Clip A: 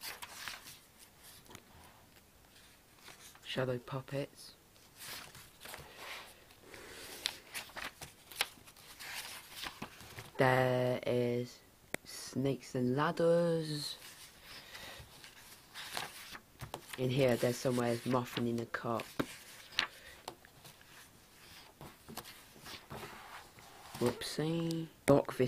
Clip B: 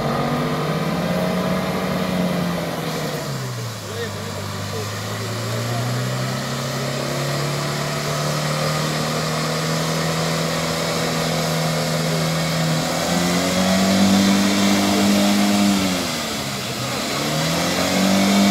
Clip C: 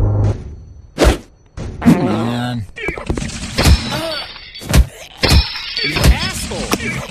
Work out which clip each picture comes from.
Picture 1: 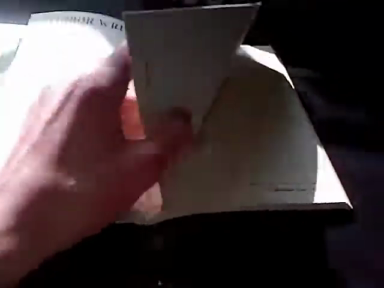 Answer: A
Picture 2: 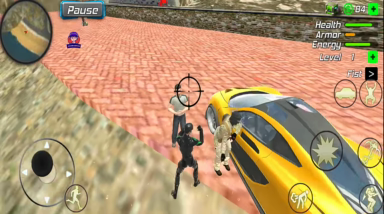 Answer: C